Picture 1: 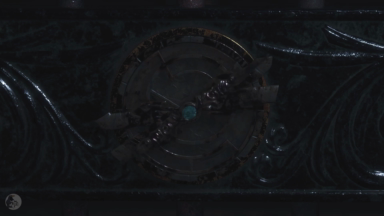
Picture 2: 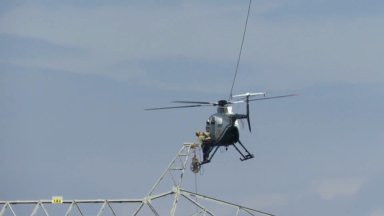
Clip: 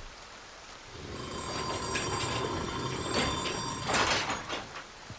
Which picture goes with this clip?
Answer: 1